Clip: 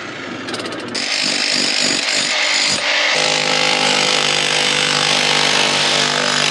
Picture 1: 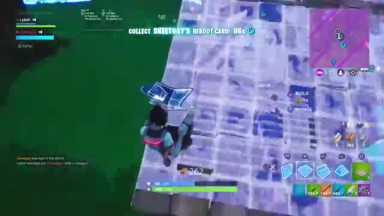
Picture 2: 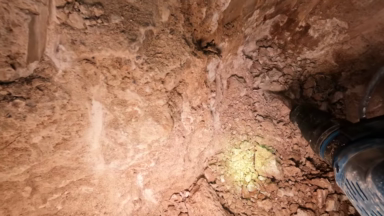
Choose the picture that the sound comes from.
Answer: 2